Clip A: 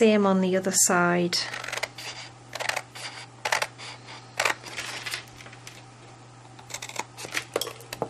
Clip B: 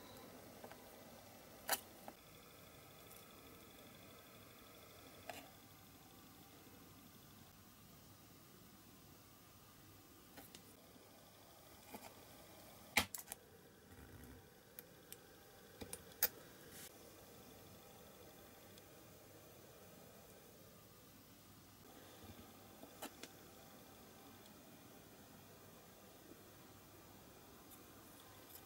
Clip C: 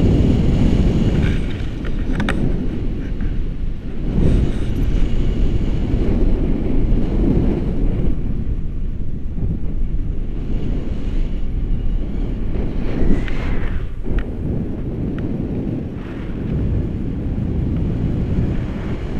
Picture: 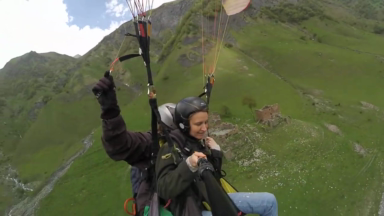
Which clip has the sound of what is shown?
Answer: C